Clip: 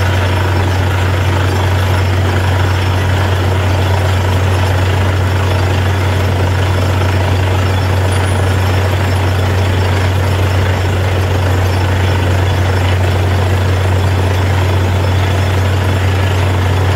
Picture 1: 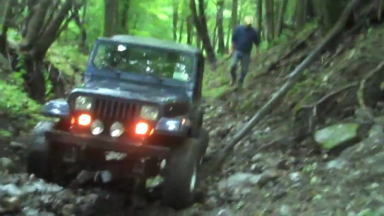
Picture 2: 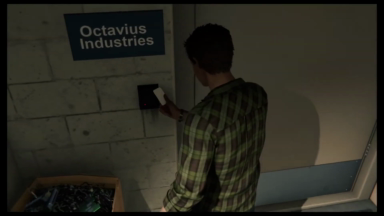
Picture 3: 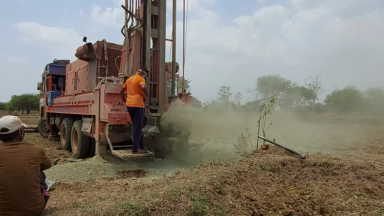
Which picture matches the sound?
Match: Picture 3